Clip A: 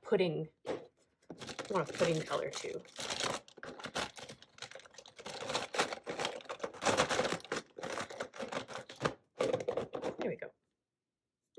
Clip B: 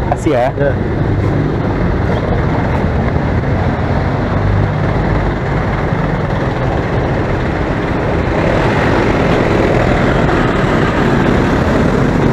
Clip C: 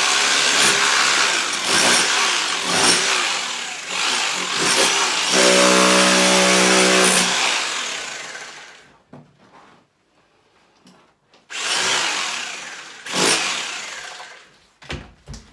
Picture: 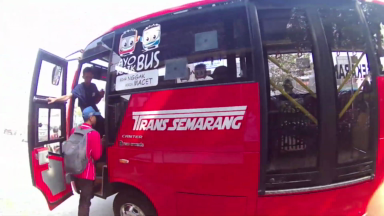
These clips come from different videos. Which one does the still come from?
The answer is B